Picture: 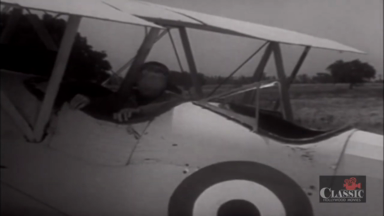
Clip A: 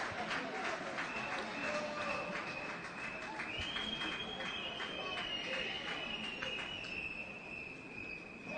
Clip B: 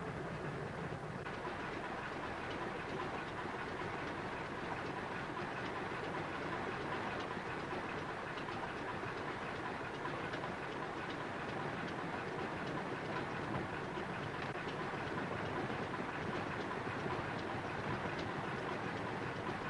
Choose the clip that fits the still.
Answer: B